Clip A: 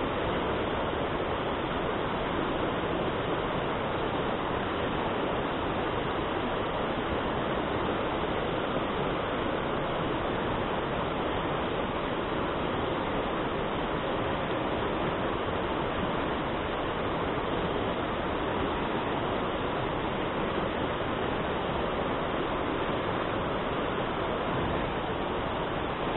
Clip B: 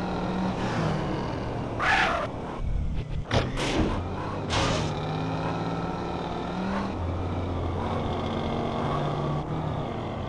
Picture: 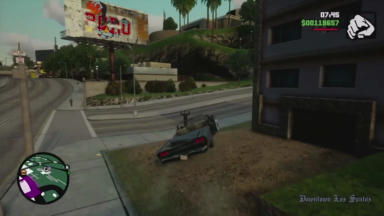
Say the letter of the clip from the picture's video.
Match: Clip B